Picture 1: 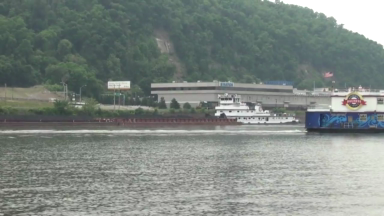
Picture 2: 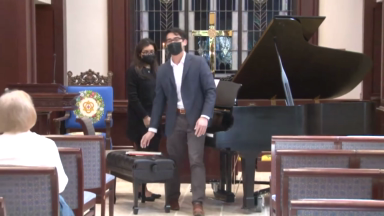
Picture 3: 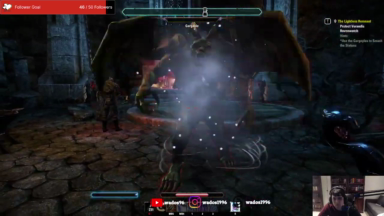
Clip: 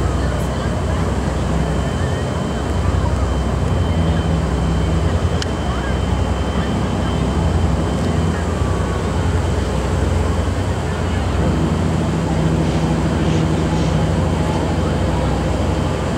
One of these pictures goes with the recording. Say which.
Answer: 1